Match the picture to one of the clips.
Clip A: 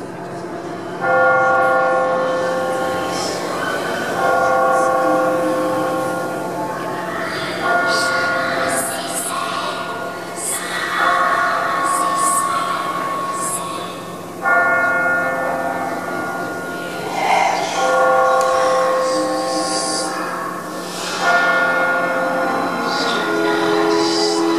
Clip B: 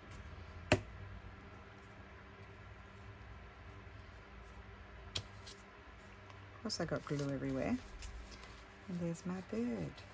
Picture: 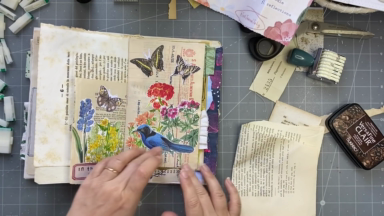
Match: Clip B